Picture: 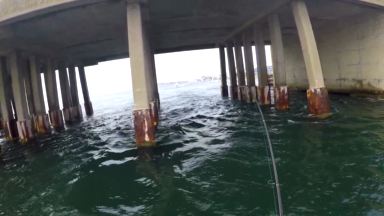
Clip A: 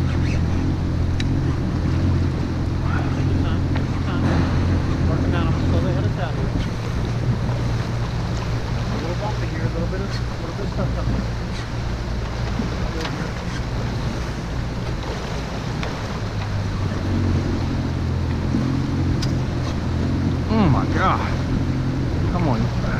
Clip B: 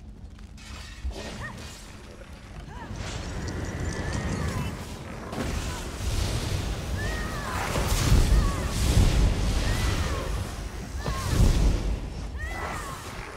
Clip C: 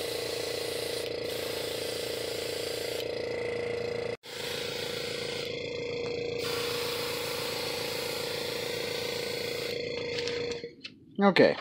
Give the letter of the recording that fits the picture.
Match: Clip A